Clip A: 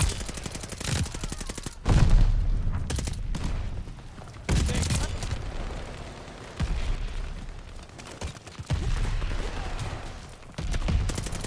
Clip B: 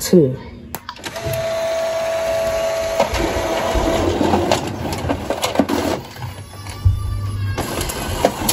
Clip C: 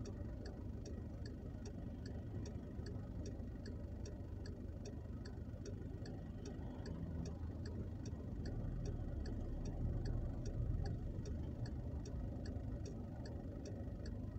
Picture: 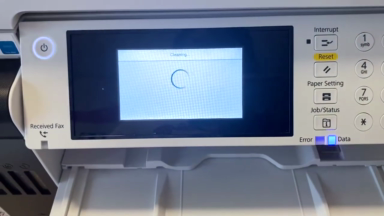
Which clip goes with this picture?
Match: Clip B